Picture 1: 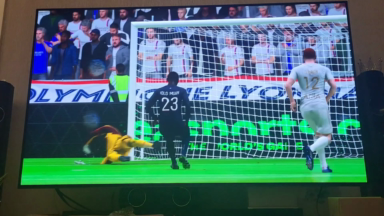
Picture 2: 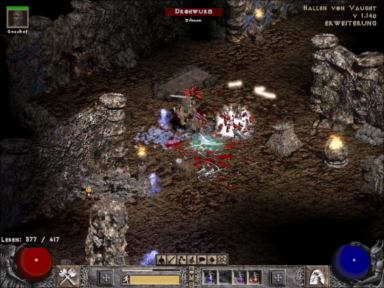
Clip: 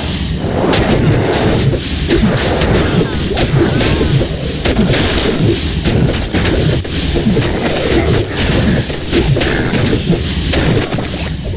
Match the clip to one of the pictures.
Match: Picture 2